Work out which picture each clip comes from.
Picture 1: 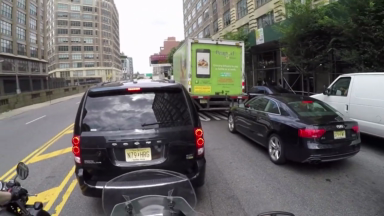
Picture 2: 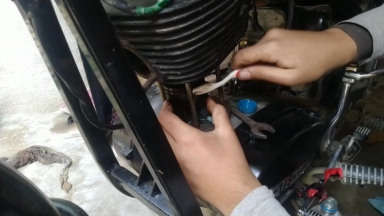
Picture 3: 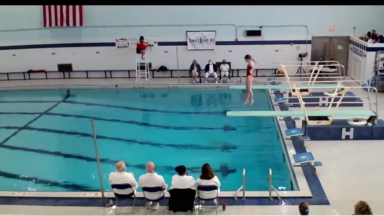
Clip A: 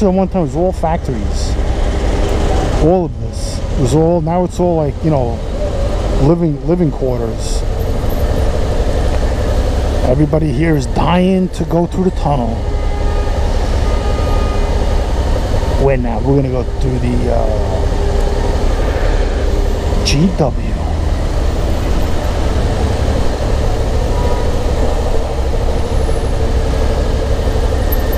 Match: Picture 1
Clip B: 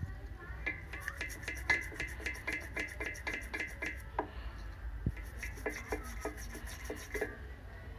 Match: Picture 2